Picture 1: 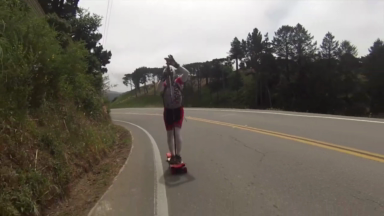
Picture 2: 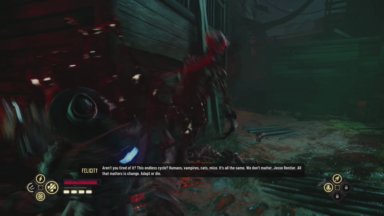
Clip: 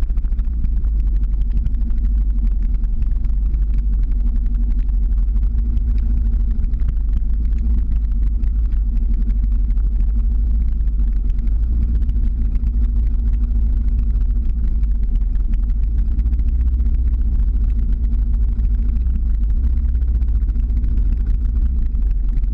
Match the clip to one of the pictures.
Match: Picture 1